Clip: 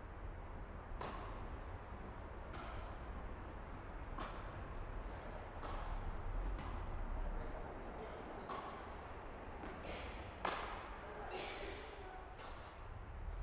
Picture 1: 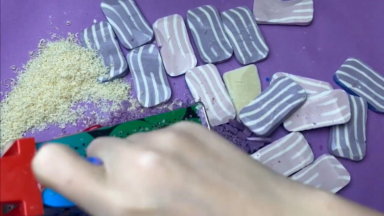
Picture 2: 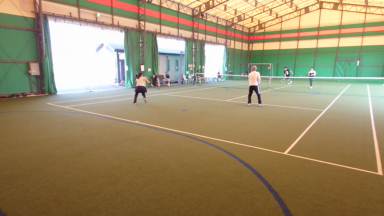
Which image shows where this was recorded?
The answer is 2